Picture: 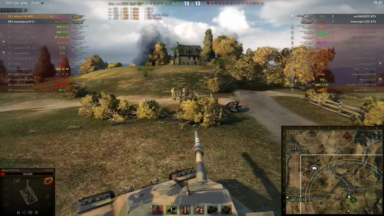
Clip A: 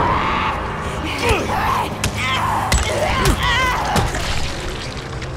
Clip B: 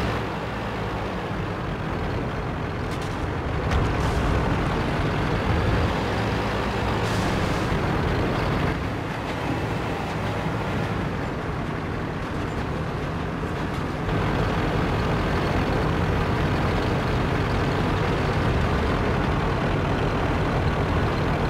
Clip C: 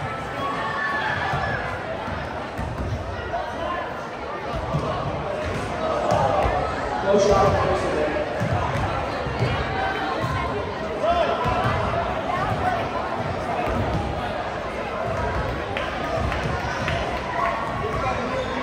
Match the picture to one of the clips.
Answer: B